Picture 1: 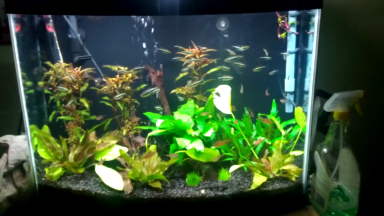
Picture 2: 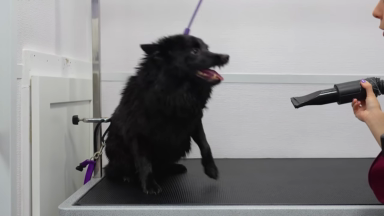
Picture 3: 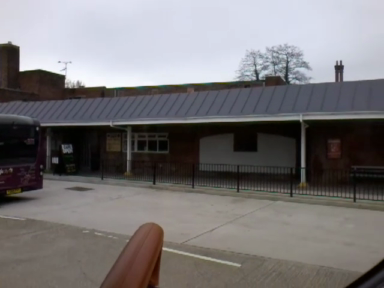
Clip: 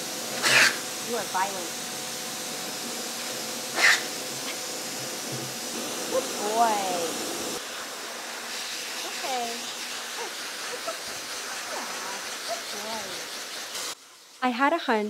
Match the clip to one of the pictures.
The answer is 2